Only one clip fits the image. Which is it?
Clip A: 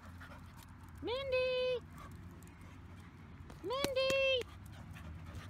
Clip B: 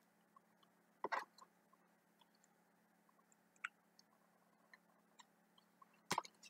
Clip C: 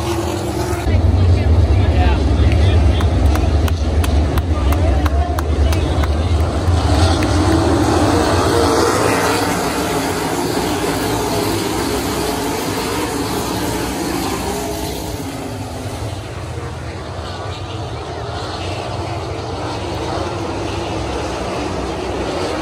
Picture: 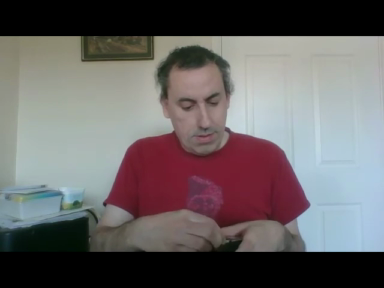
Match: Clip B